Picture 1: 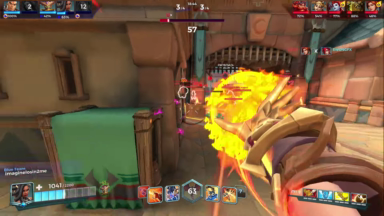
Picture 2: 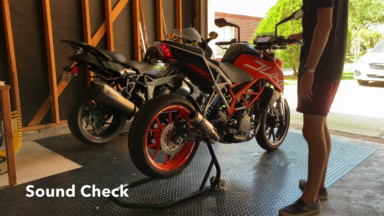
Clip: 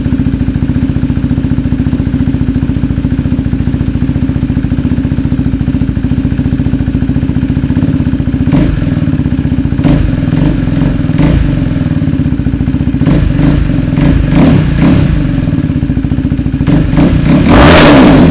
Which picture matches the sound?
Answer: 2